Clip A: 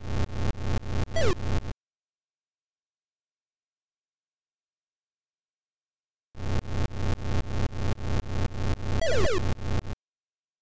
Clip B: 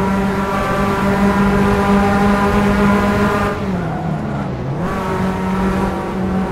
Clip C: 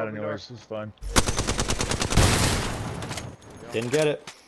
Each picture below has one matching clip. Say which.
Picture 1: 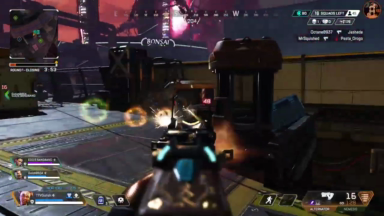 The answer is C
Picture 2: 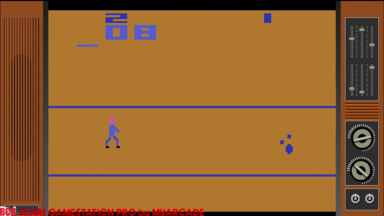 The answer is A